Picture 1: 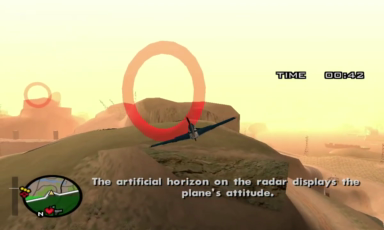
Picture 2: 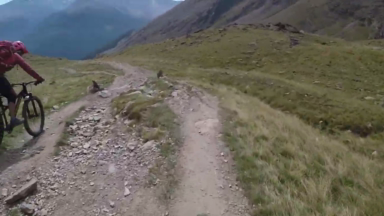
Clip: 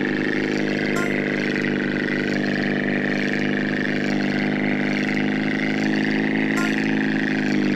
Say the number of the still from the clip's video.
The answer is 1